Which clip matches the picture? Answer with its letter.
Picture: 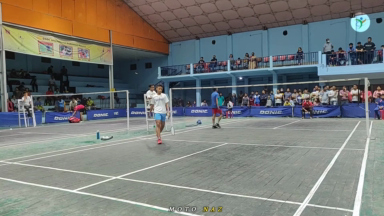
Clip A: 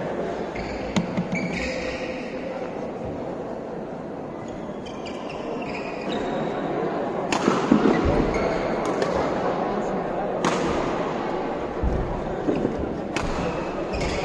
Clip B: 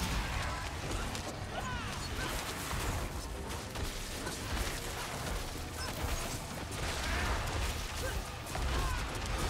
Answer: A